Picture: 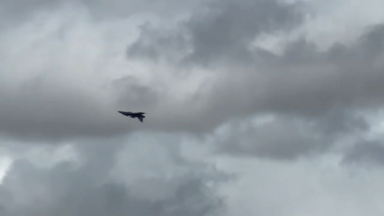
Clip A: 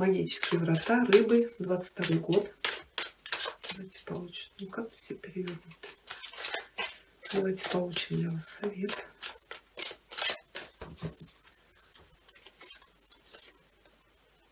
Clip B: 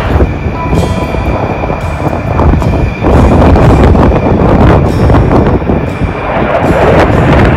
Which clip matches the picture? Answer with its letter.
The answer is B